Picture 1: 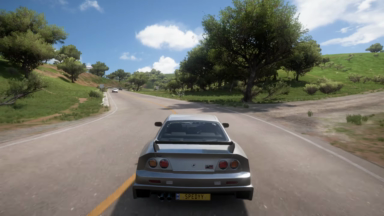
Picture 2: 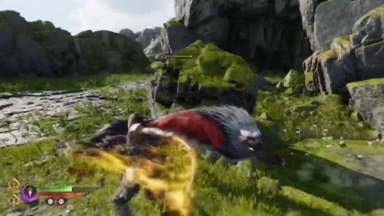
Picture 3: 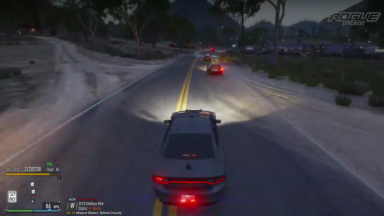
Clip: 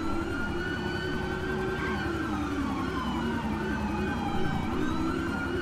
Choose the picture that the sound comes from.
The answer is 3